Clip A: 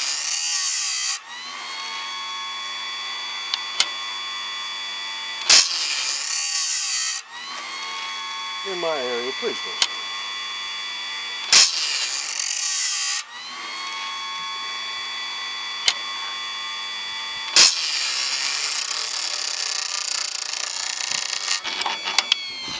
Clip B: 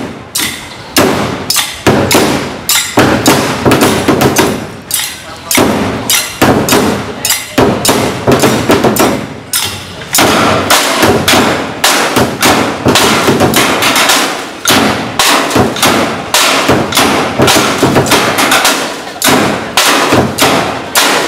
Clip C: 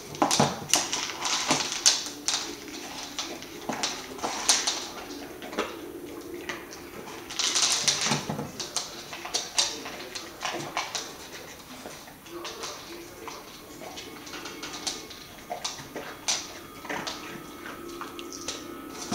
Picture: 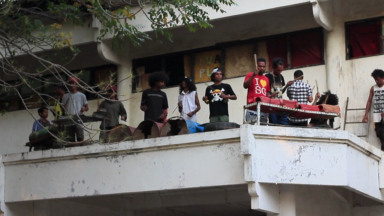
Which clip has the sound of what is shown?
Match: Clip B